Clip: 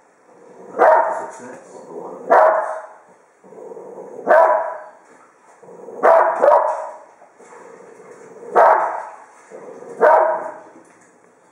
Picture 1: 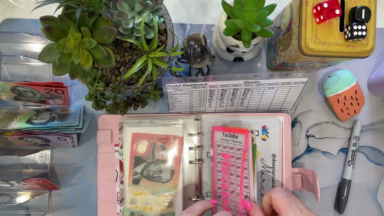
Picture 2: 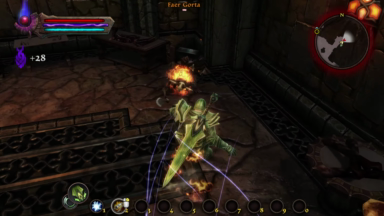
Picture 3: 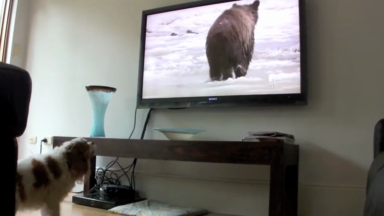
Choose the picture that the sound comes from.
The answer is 3